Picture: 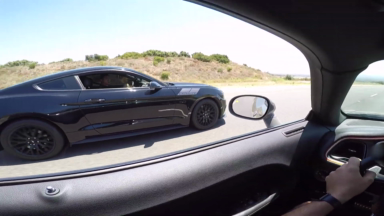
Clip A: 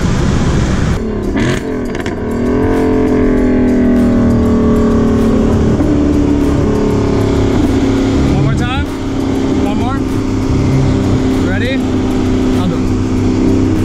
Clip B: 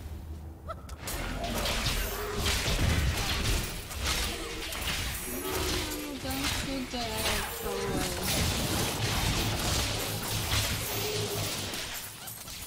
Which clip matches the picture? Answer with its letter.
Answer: A